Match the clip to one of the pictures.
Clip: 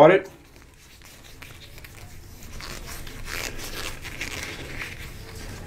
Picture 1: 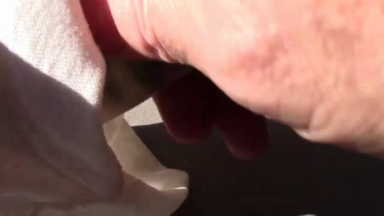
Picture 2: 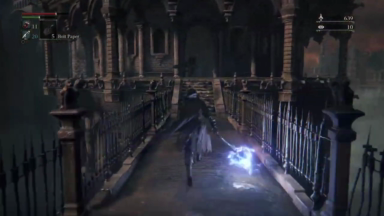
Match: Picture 1